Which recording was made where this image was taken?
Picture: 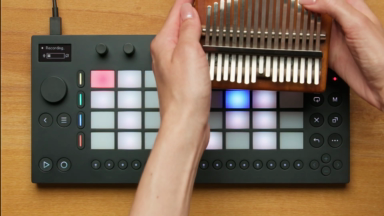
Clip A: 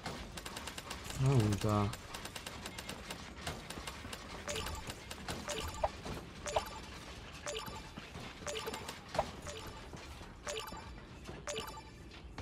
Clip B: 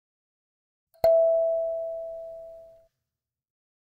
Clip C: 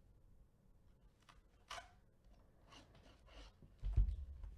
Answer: B